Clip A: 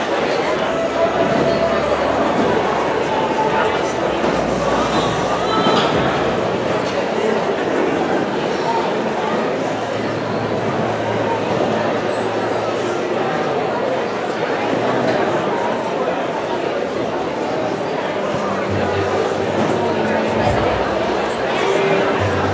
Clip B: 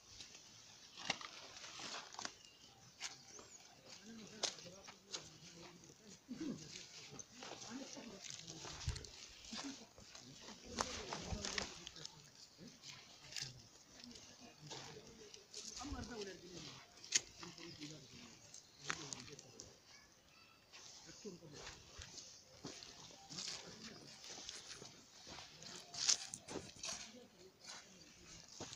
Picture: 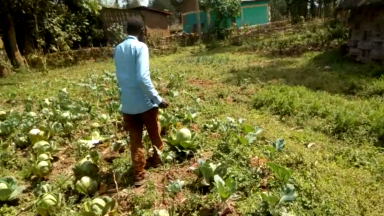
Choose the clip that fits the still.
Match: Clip B